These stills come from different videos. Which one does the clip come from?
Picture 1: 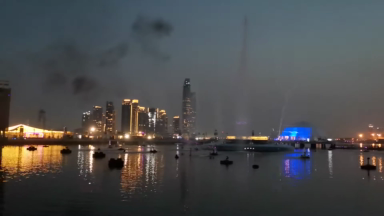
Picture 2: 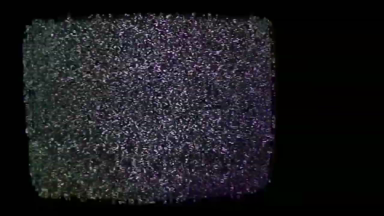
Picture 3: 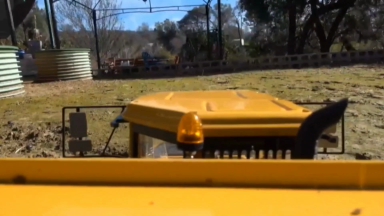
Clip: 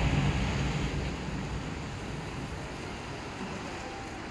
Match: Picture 1